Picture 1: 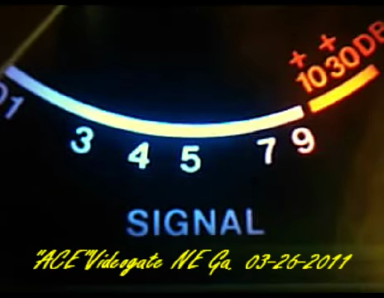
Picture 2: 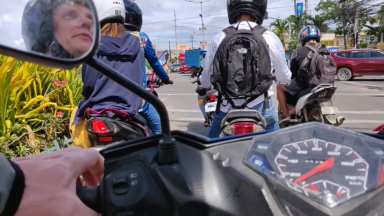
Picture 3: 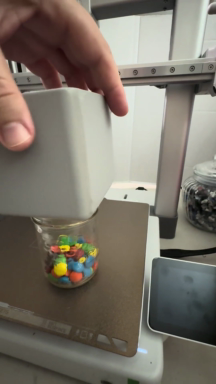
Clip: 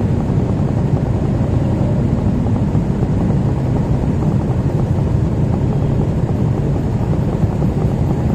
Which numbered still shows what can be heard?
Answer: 2